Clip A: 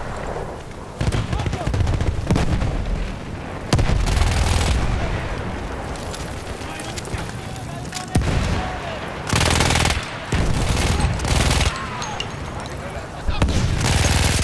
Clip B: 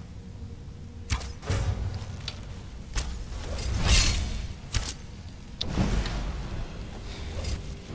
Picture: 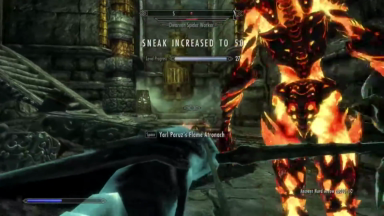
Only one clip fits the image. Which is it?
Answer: B